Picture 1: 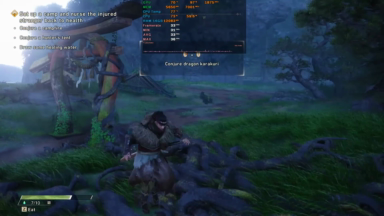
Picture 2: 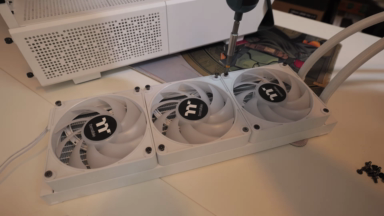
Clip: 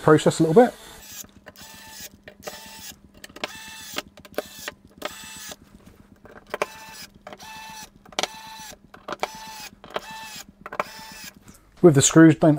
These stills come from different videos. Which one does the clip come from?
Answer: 2